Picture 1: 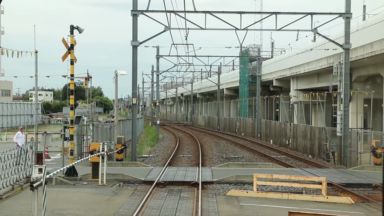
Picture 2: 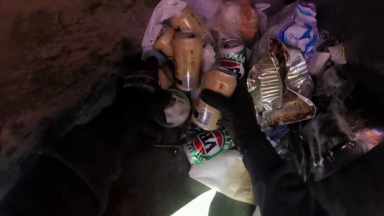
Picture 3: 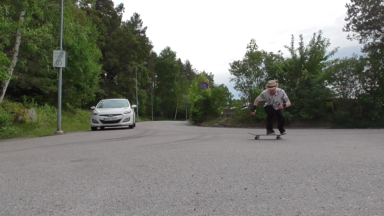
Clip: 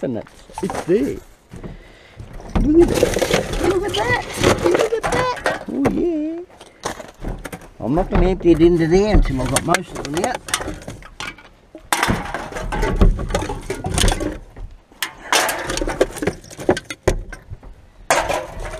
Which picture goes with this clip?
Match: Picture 2